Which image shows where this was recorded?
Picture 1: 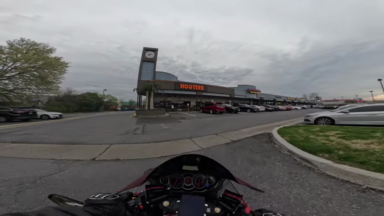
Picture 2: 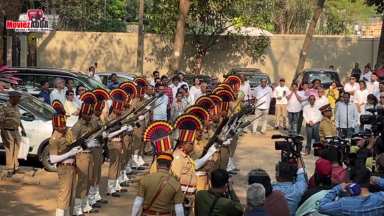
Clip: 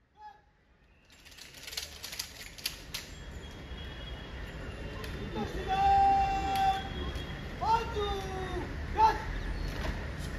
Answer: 2